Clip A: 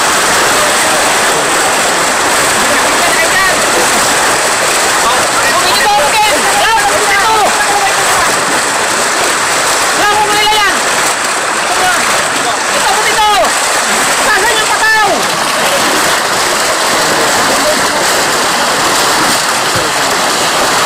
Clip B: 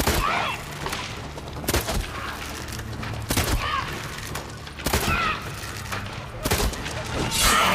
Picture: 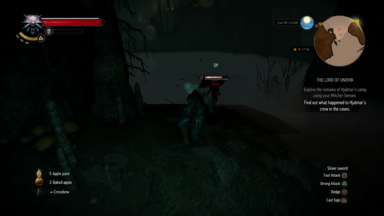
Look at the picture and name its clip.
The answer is B